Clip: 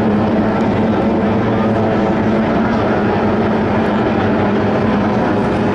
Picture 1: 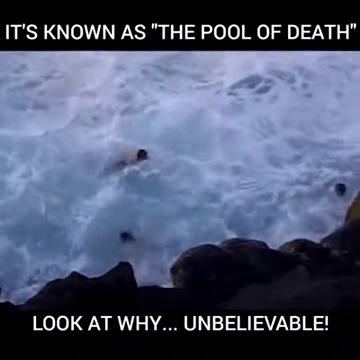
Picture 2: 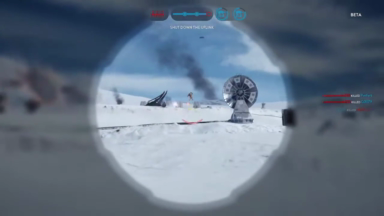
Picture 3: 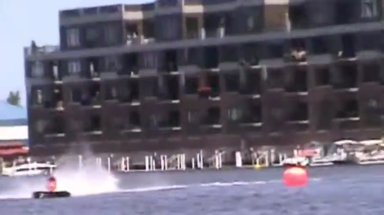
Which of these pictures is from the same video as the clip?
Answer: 3